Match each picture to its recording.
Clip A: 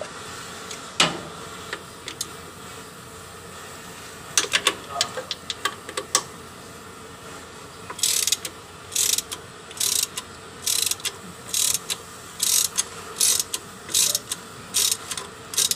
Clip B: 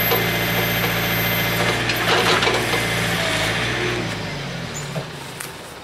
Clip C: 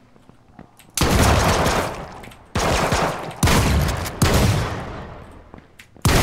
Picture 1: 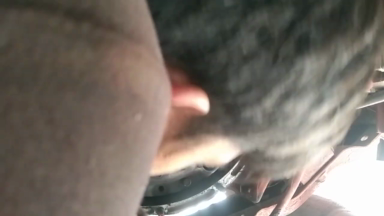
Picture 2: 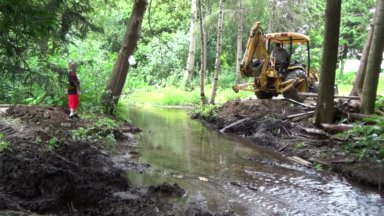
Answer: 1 A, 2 B